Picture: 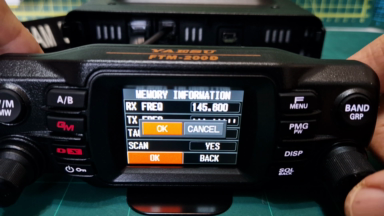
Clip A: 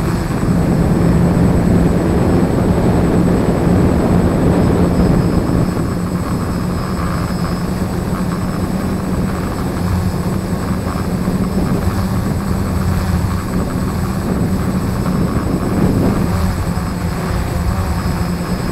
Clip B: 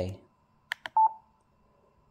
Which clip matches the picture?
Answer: B